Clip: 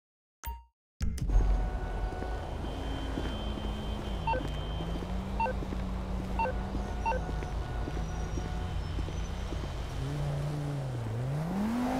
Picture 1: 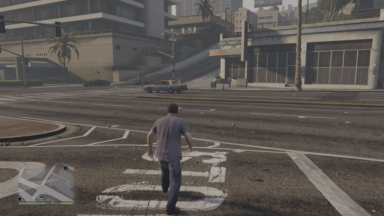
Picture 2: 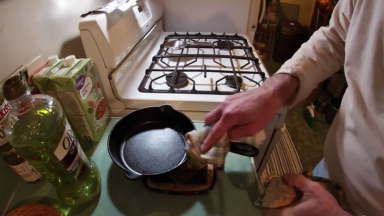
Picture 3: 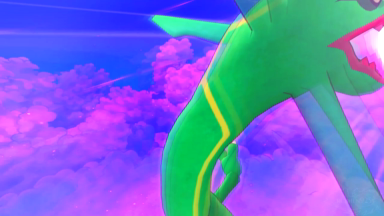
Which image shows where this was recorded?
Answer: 1